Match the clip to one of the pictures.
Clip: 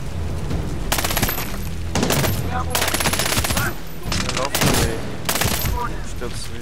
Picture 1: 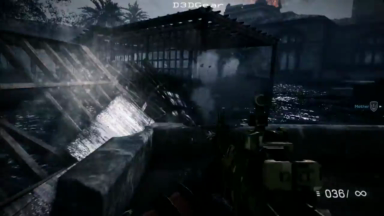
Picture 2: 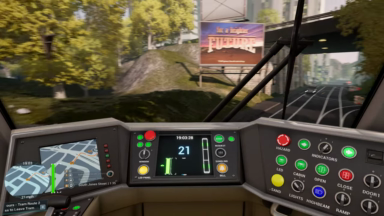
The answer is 1